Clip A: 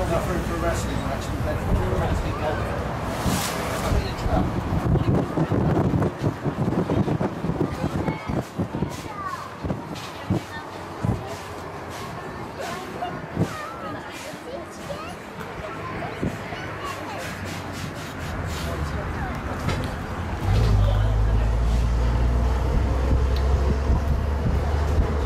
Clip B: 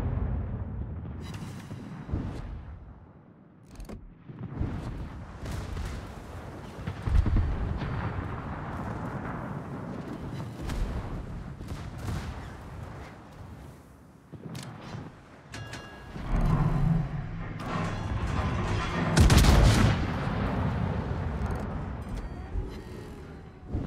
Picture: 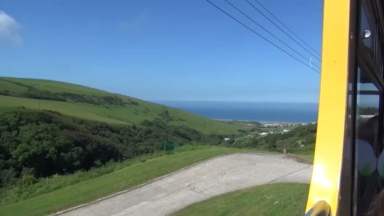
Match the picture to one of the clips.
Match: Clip A